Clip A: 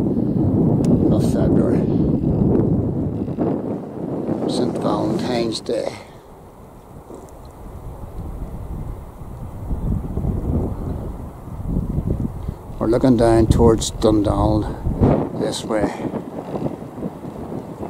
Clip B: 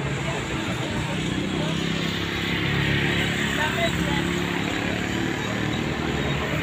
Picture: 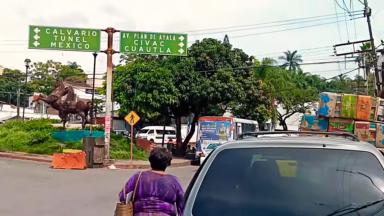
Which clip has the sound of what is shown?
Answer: B